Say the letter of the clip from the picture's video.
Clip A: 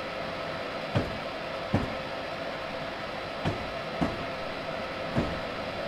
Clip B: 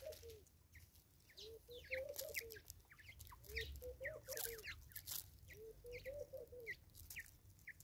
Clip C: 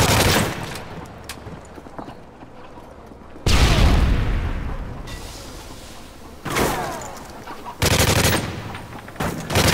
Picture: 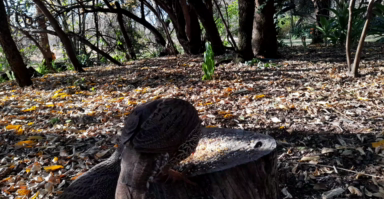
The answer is B